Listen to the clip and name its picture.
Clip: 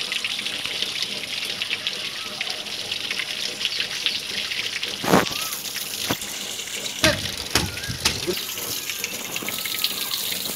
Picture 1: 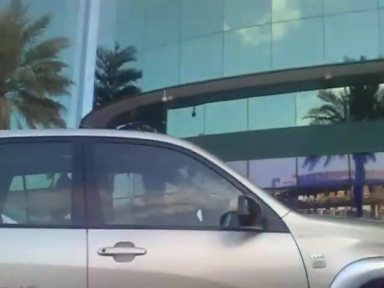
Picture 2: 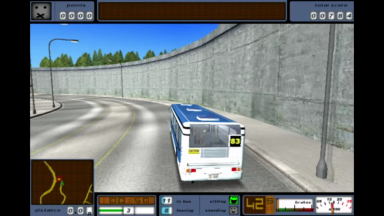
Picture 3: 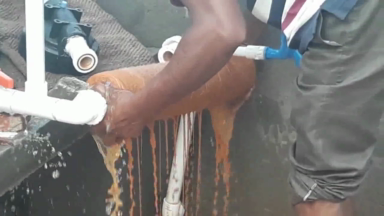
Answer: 3